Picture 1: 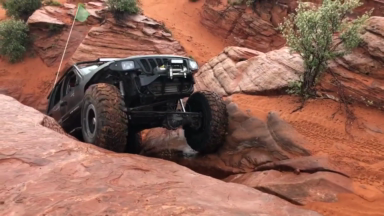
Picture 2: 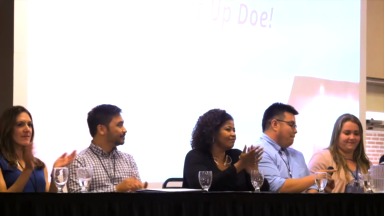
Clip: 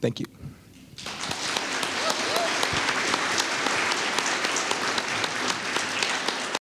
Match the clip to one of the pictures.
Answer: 2